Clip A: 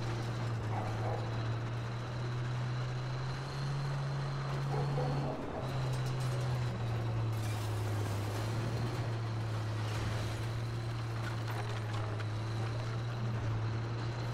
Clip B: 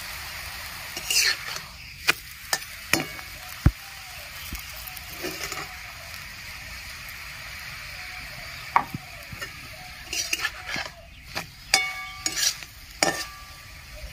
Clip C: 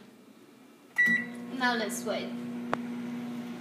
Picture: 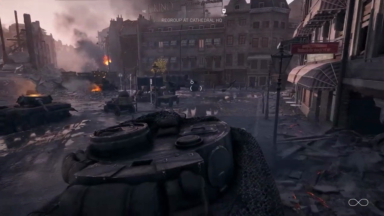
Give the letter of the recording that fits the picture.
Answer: A